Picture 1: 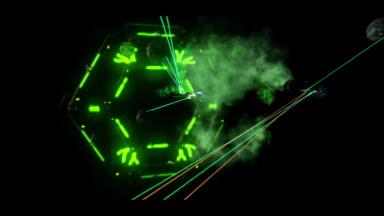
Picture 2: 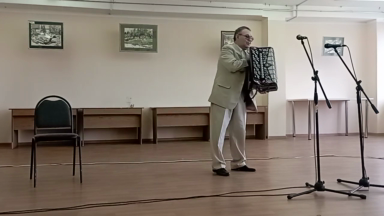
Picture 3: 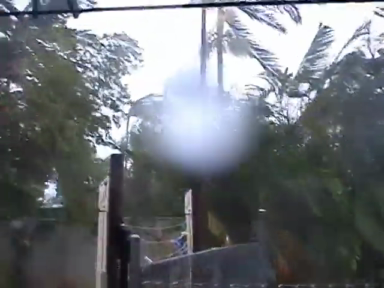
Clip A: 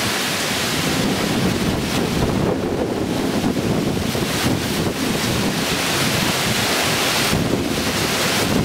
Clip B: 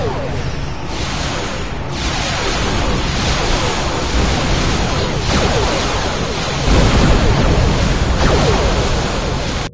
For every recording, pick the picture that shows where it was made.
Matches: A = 3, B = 1